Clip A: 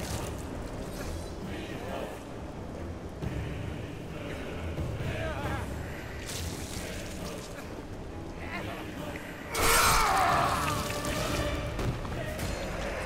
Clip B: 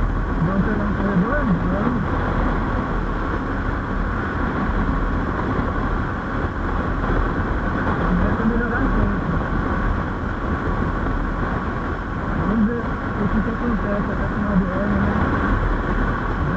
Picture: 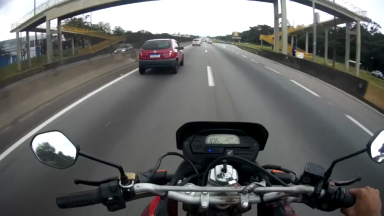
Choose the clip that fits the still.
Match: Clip B